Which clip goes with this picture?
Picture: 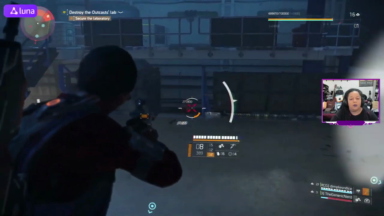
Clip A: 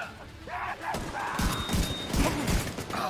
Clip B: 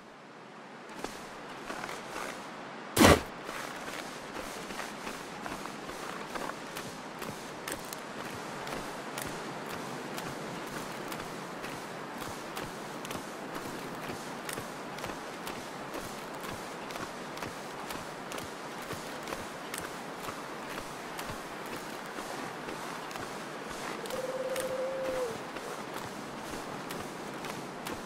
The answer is A